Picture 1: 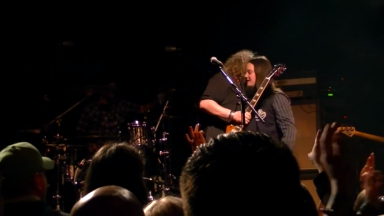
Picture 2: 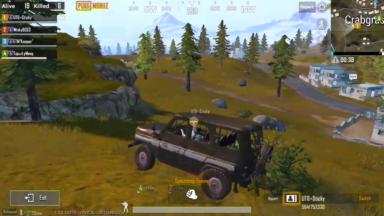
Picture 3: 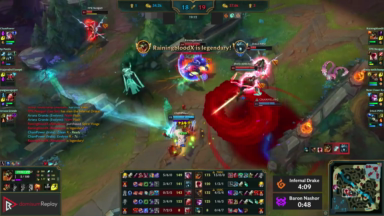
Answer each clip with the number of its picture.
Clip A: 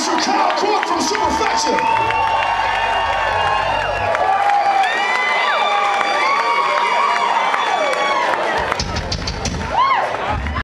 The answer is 1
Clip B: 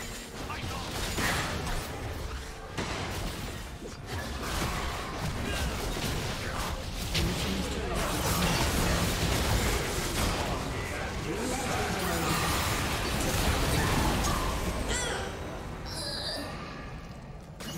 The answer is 3